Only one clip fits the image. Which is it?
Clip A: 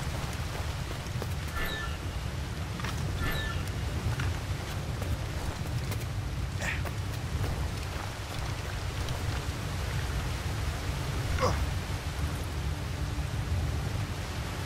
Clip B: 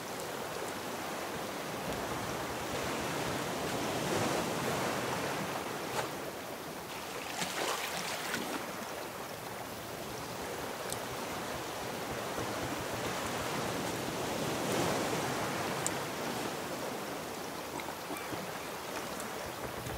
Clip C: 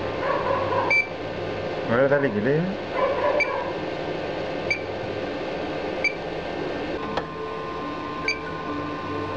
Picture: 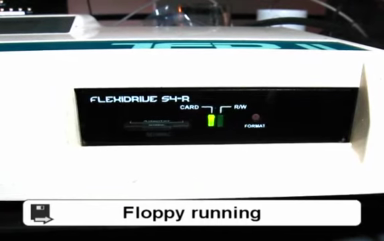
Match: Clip C